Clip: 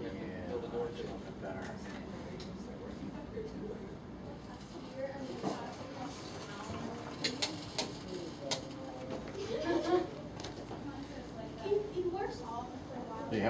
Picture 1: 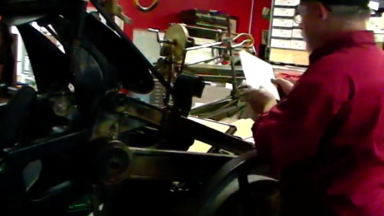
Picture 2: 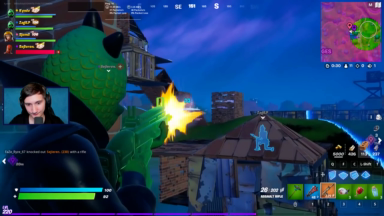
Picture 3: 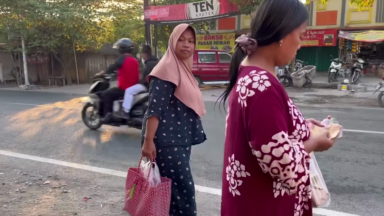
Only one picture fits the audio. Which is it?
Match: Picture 1